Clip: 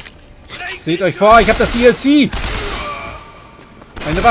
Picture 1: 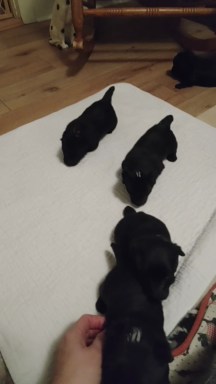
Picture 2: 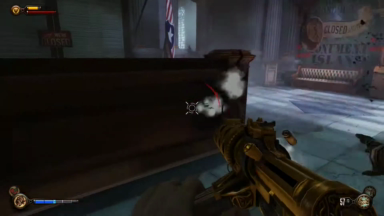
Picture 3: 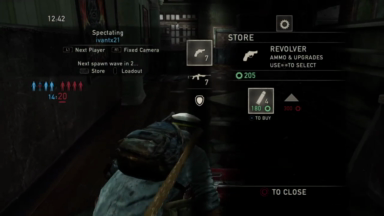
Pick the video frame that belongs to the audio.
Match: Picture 2